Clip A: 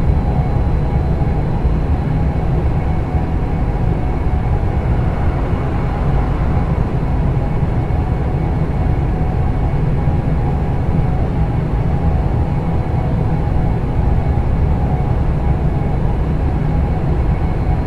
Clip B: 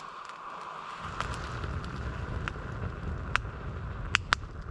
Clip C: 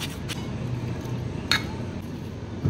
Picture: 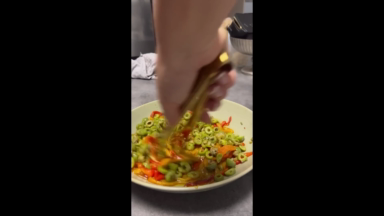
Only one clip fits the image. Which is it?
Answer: C